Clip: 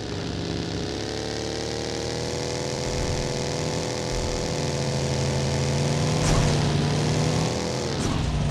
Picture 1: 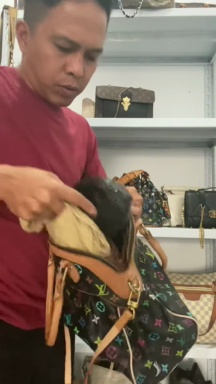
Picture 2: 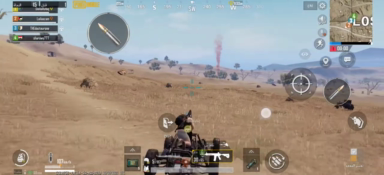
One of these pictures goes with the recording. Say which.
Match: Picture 2